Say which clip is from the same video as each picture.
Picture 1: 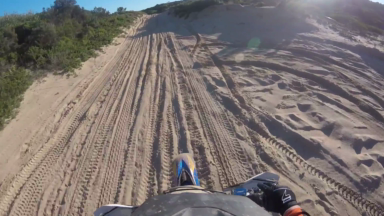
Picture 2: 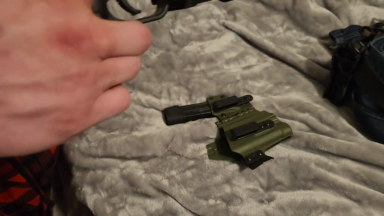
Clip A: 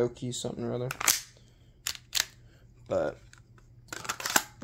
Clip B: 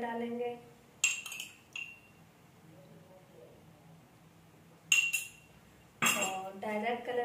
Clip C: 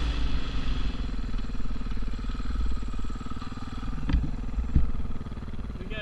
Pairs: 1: C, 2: A